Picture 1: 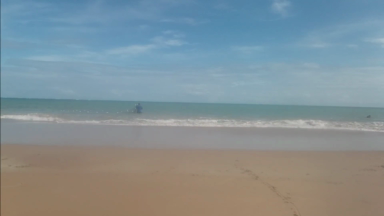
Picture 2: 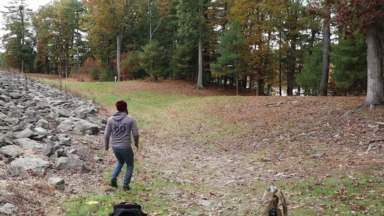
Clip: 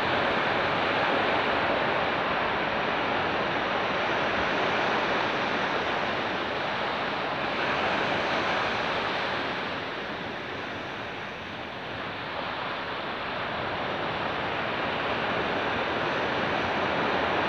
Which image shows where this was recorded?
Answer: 1